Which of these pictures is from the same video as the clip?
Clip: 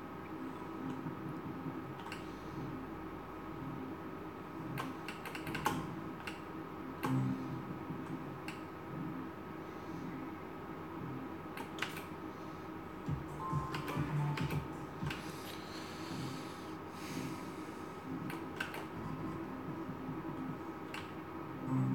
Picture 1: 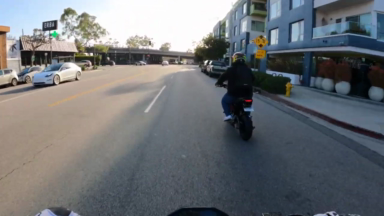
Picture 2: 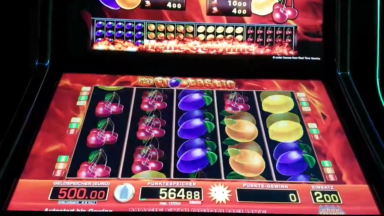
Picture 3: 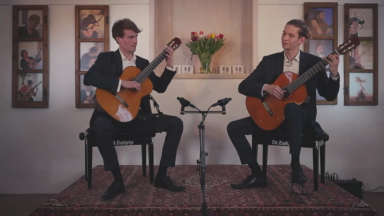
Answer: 2